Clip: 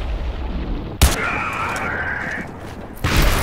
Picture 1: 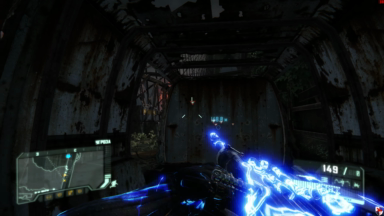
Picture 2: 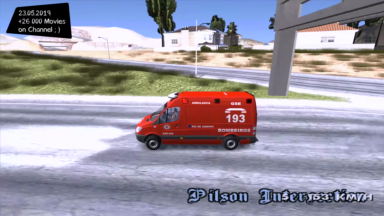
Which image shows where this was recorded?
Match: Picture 1